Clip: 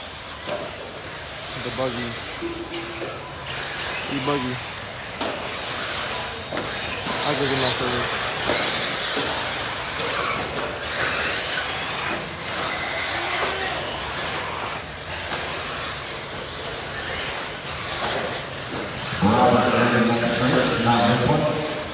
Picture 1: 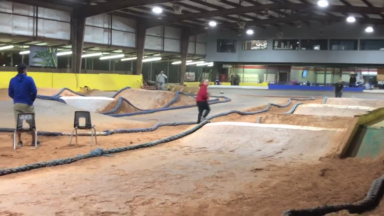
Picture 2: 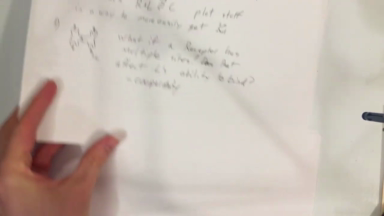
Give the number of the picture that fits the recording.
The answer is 1